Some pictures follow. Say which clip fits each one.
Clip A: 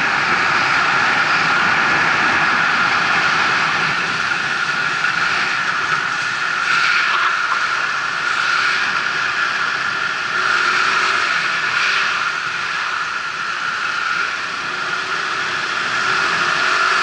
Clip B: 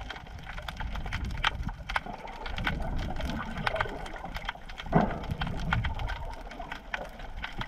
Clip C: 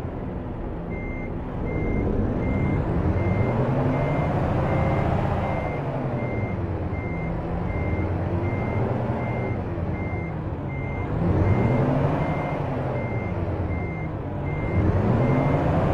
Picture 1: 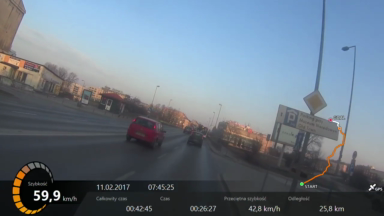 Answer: A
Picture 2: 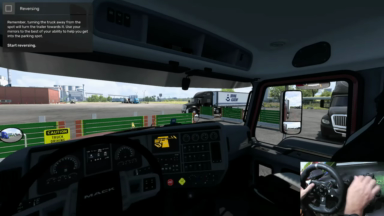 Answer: C